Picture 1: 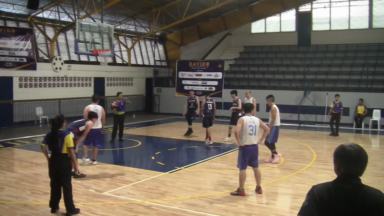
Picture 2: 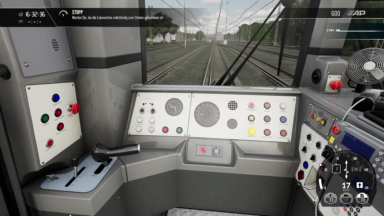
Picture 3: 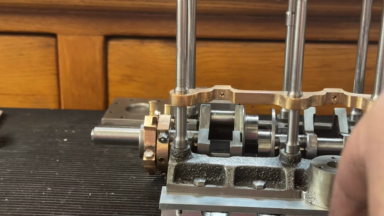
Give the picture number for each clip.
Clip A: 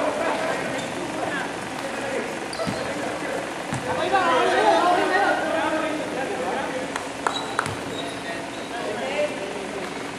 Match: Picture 1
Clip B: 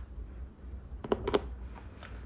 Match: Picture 3